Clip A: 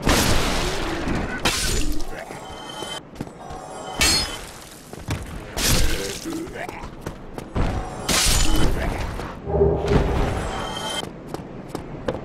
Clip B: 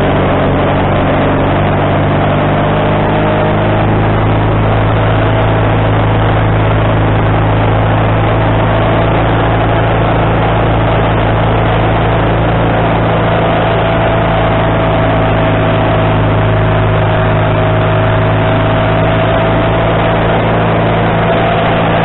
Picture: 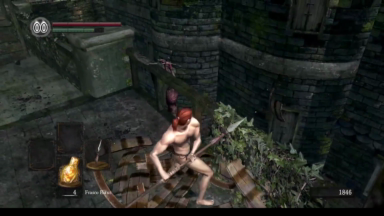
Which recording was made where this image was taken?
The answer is A